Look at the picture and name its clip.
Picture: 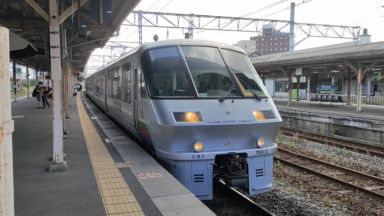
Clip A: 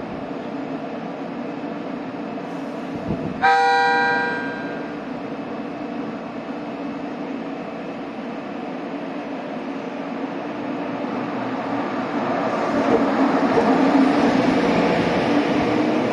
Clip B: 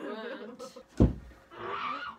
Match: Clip A